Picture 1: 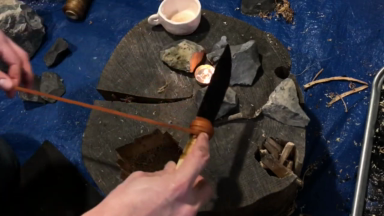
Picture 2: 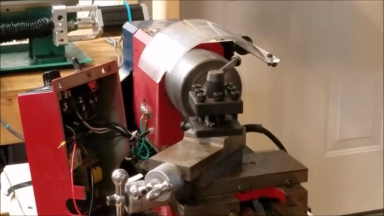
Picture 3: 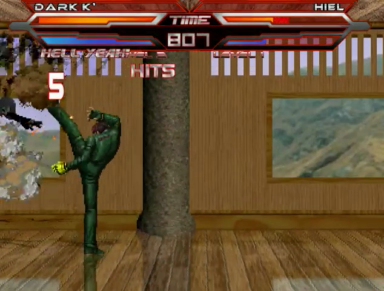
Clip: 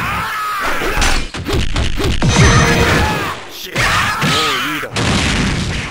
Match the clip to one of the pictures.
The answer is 3